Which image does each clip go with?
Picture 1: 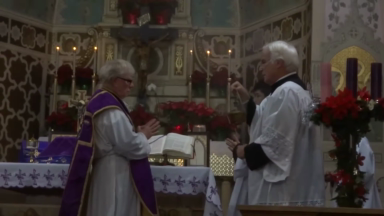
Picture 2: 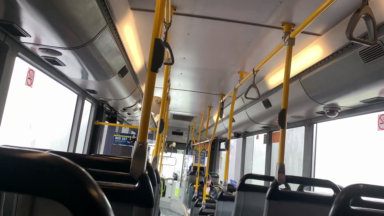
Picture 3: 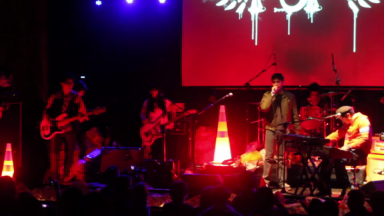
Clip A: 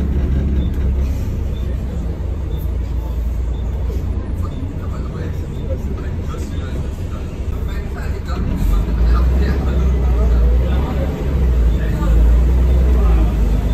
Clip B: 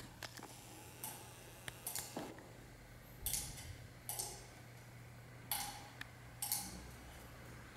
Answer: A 2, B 1